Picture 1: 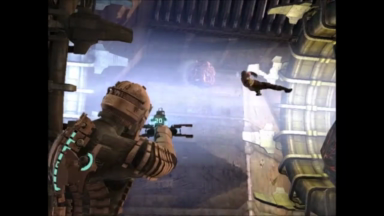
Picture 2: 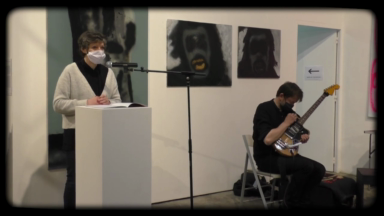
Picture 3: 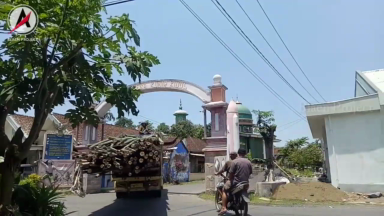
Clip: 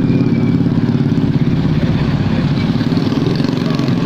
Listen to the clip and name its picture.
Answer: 3